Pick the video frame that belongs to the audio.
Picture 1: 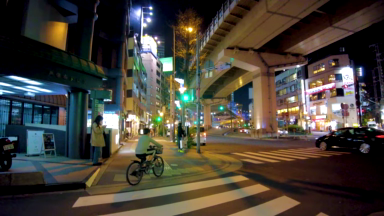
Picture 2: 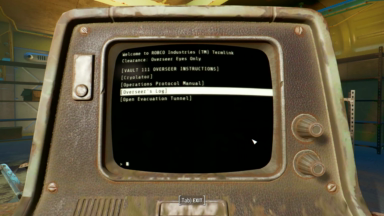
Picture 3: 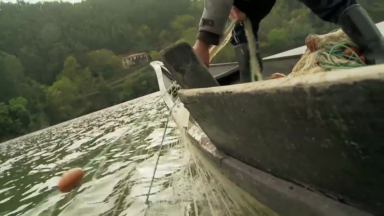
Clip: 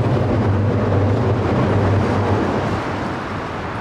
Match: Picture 1